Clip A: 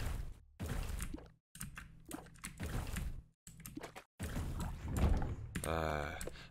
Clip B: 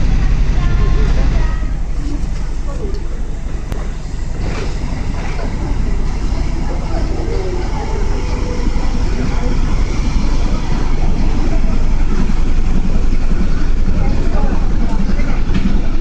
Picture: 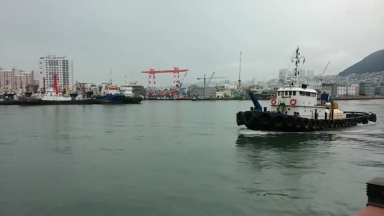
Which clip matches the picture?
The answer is B